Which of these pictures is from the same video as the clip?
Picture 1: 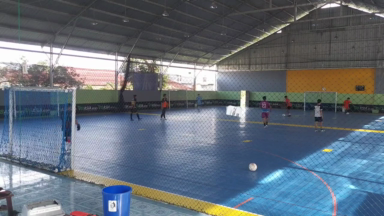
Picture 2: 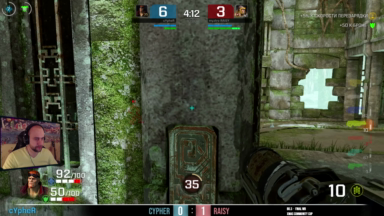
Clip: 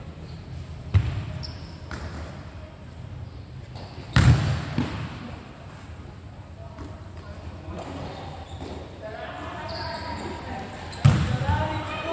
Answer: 1